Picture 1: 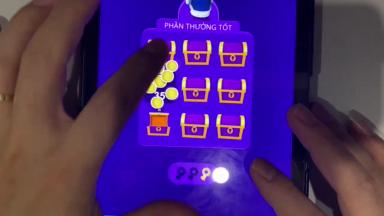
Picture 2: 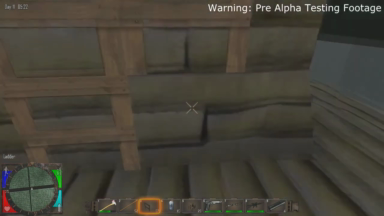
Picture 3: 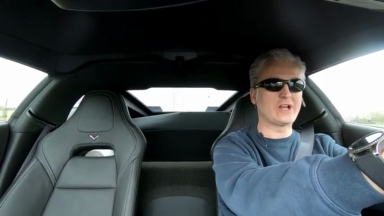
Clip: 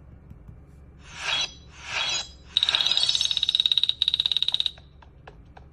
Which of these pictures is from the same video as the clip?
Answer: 1